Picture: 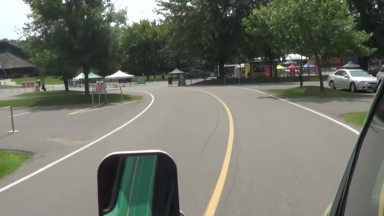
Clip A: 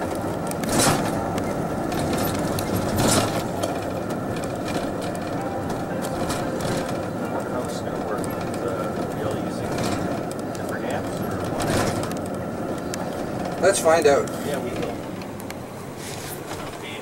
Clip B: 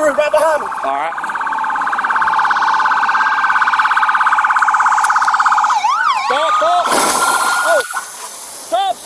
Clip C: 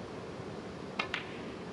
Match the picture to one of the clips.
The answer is A